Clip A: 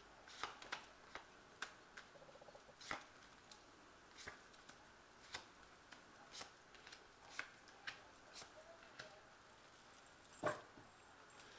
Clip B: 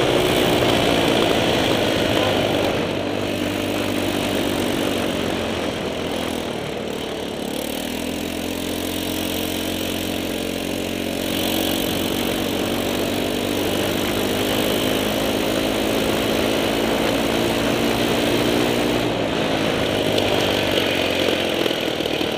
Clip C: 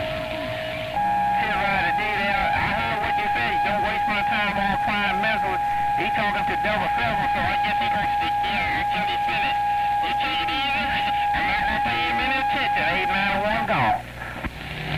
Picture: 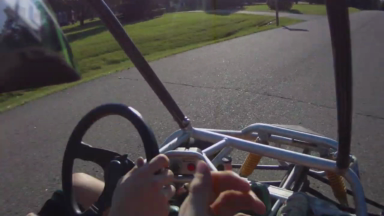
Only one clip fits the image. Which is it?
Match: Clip B